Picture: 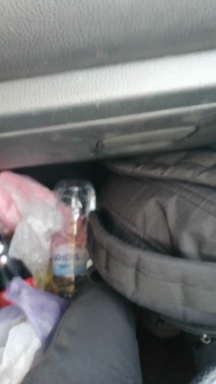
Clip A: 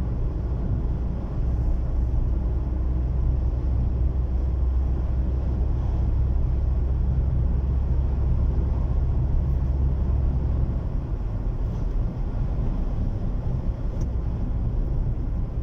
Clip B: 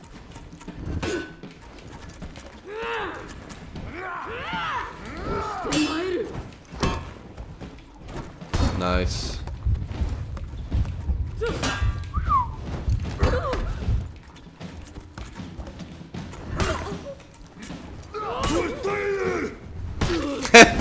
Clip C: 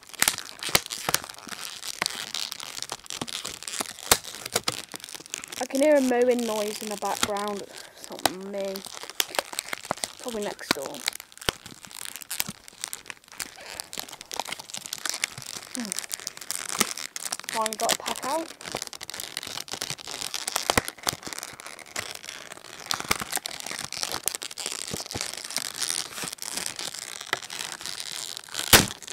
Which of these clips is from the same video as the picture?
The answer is A